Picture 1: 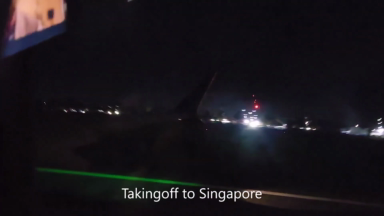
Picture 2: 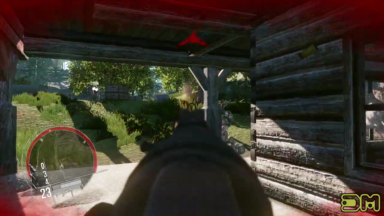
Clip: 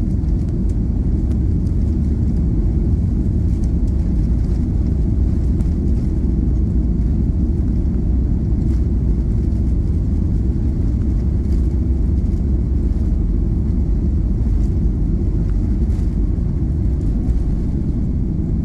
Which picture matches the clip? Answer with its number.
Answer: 1